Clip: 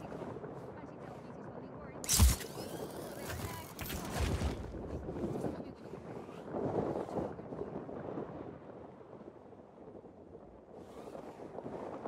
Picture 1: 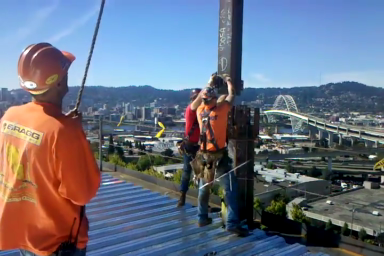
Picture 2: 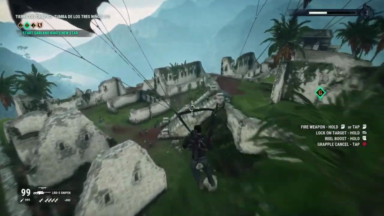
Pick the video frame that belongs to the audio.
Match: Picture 2